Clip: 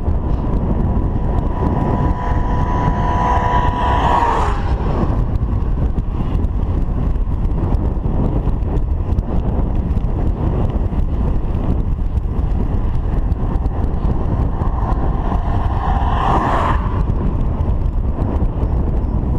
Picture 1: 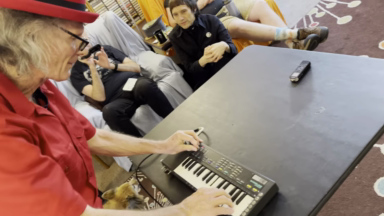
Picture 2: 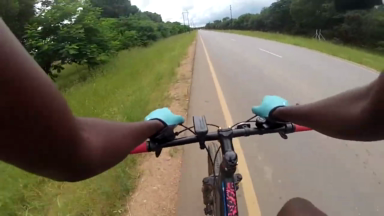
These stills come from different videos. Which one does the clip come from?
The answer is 2